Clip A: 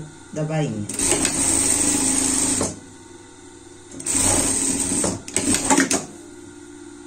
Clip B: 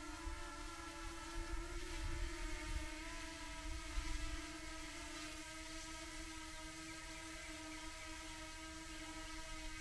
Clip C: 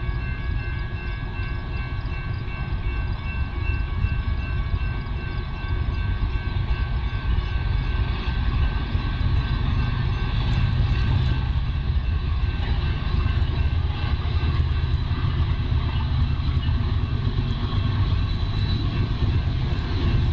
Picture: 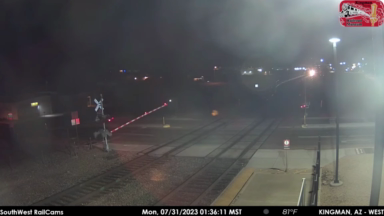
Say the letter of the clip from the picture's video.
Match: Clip C